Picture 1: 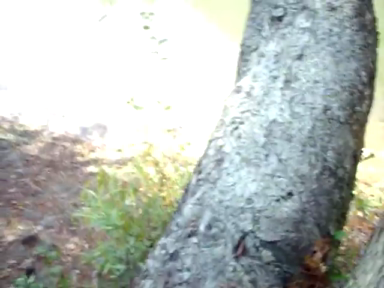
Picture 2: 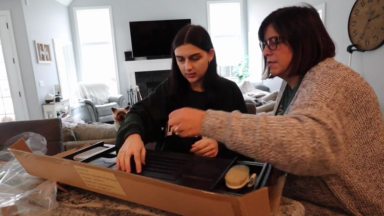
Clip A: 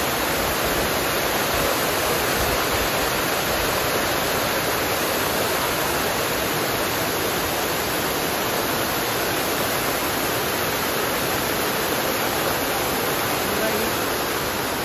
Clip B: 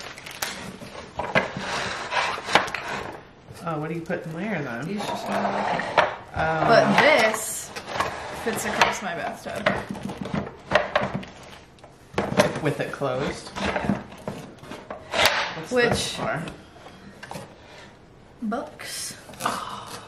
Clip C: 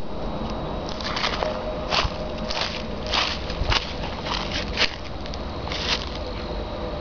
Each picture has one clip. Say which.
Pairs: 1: C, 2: B